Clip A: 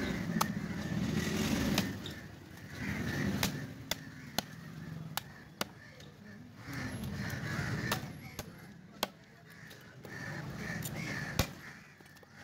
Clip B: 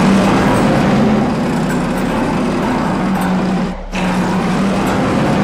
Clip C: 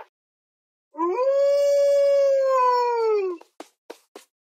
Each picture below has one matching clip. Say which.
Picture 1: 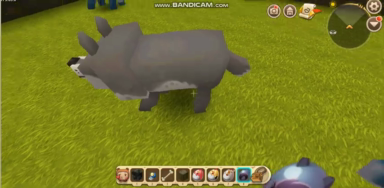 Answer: C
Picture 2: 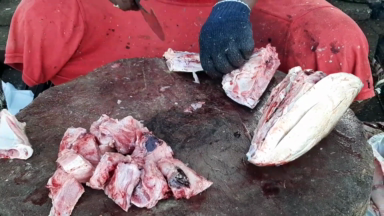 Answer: A